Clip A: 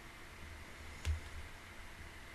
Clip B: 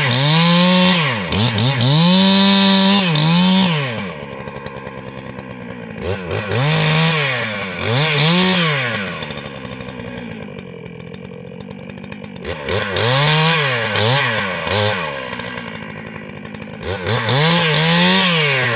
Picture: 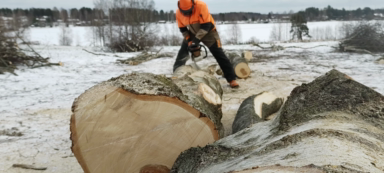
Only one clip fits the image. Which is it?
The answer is B